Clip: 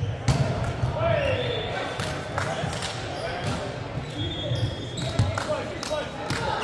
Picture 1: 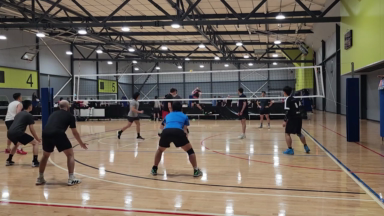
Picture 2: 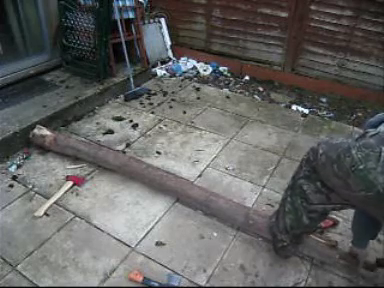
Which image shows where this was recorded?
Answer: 1